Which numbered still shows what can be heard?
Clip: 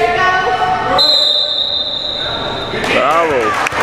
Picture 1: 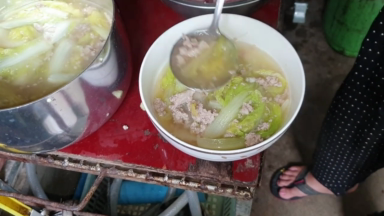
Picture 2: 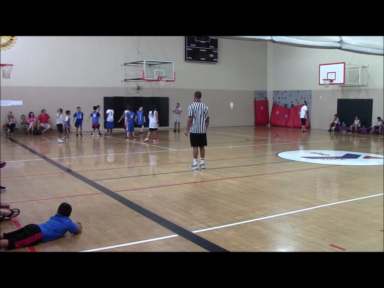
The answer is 2